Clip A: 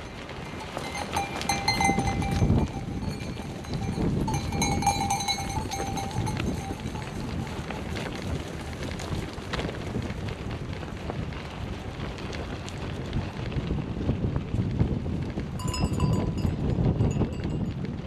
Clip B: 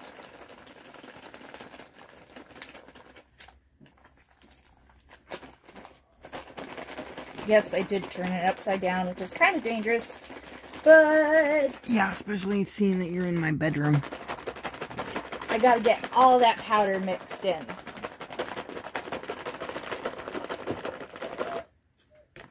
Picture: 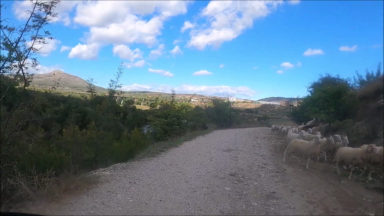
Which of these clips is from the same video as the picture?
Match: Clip A